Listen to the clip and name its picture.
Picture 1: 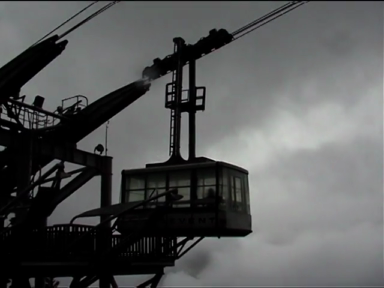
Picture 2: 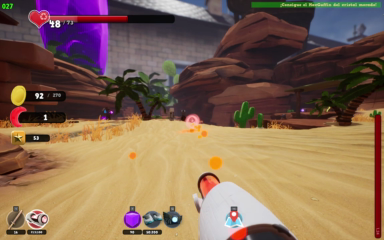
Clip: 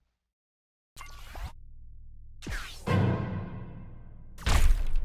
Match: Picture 2